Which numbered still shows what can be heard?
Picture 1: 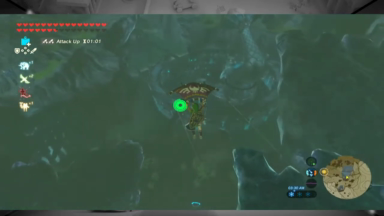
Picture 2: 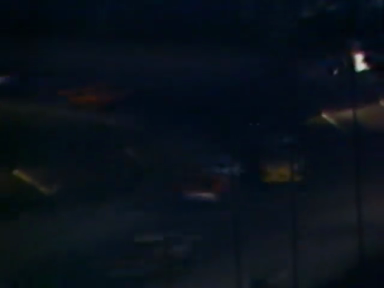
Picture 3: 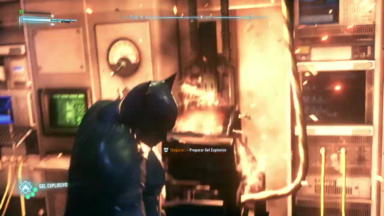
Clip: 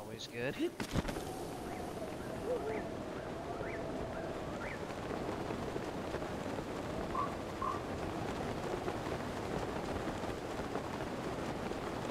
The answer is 1